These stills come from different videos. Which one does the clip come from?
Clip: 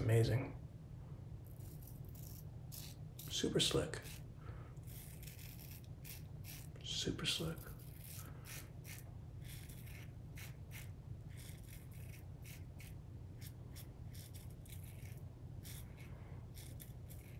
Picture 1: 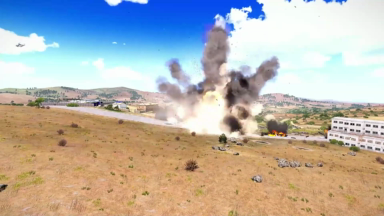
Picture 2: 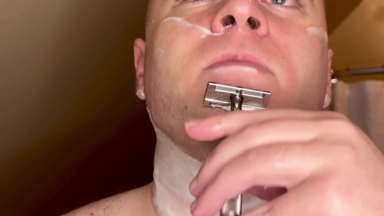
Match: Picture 2